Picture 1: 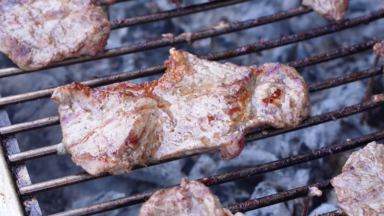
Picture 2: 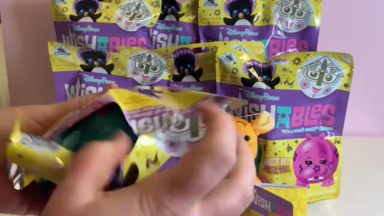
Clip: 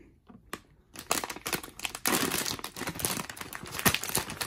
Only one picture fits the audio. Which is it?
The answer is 2